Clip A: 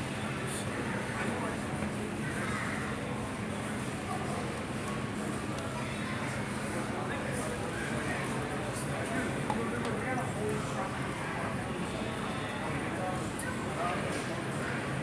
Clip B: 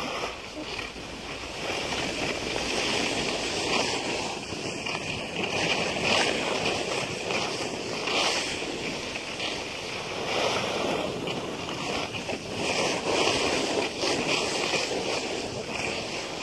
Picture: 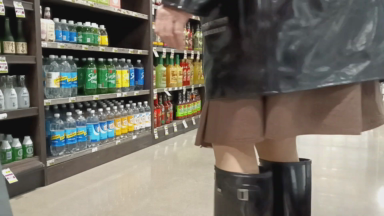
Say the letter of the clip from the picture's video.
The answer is A